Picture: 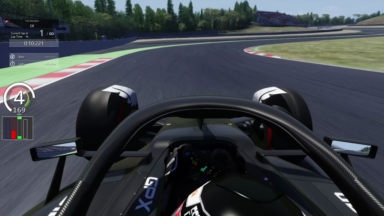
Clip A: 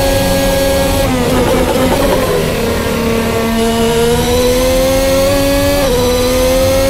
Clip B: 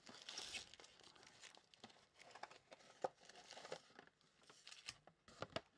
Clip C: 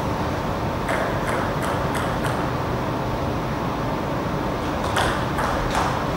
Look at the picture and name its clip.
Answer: A